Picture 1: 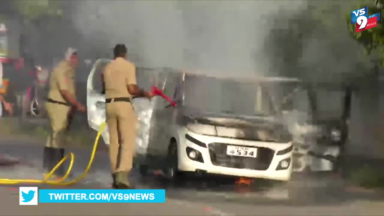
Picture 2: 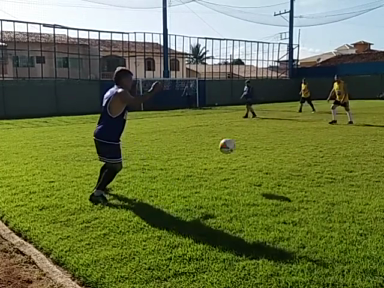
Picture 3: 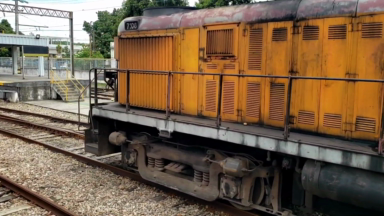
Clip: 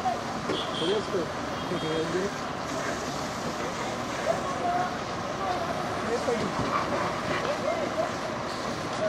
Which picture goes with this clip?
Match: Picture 1